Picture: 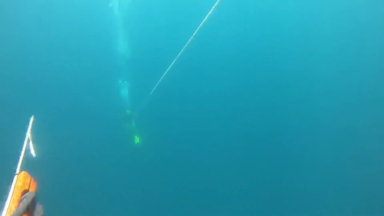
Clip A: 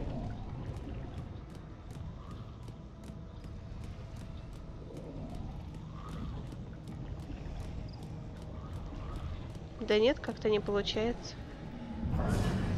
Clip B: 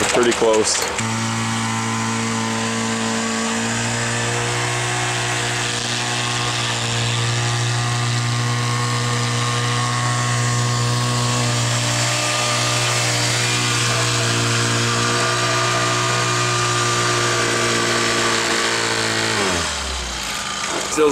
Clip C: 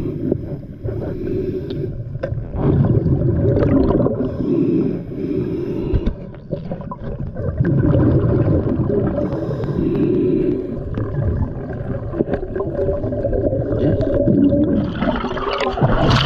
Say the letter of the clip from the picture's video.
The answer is C